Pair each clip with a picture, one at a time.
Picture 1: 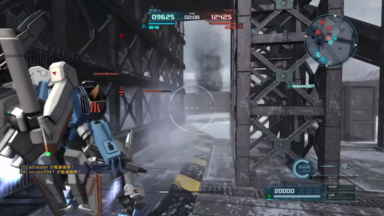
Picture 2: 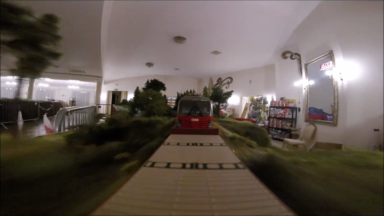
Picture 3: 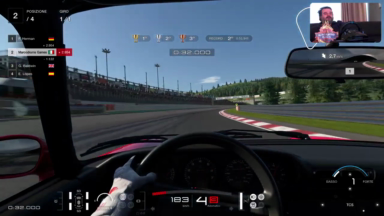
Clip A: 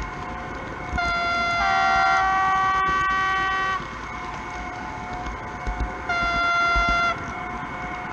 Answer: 2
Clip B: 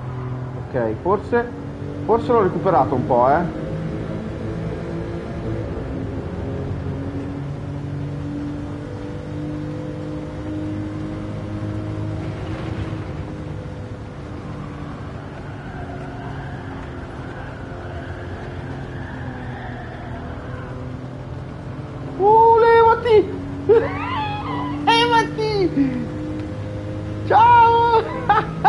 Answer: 3